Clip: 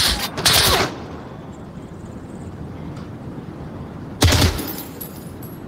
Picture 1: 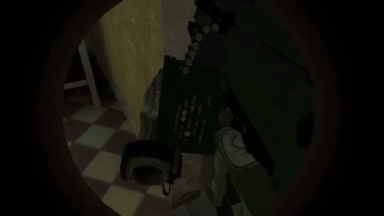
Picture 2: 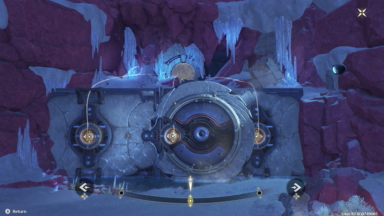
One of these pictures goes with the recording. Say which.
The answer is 1